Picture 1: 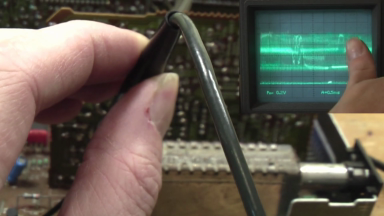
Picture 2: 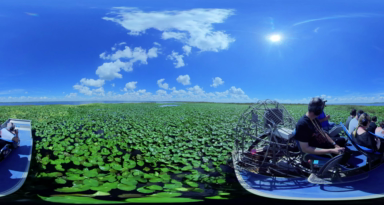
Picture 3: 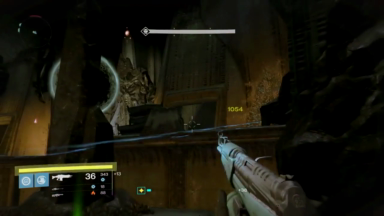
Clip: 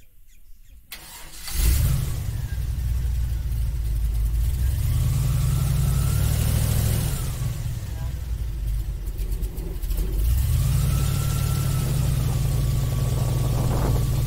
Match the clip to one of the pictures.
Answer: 2